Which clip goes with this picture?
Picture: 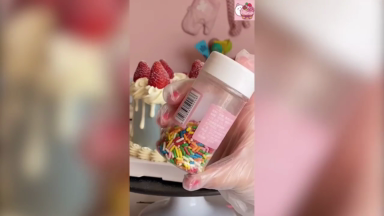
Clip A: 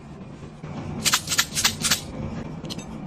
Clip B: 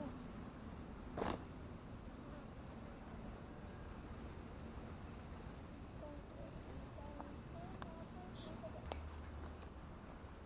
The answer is A